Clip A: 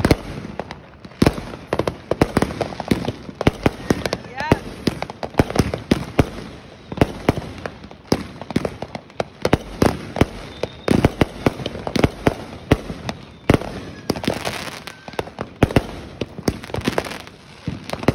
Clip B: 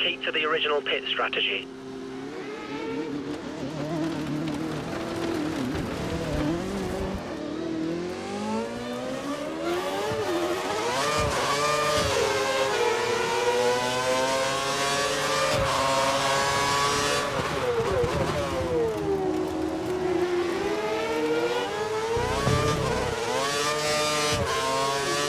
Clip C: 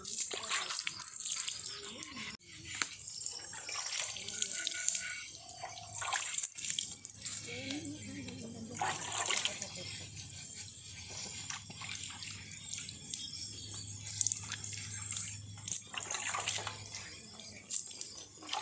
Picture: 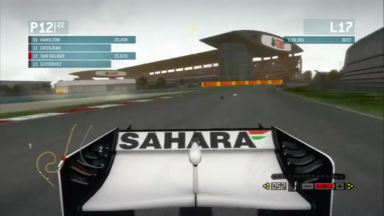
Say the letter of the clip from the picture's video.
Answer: B